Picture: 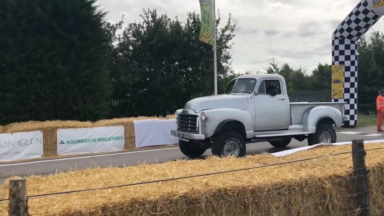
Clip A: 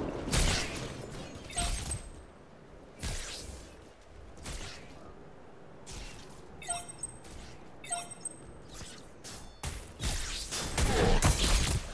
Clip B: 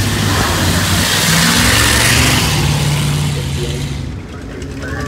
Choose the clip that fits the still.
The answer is B